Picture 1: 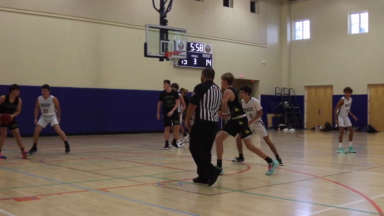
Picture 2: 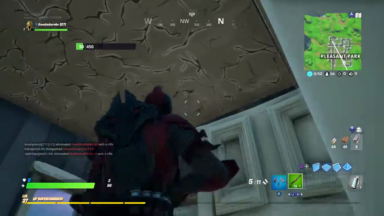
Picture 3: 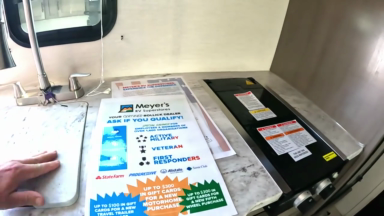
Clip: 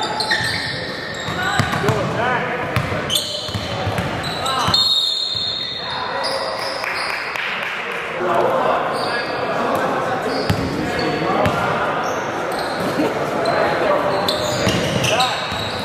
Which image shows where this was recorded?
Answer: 1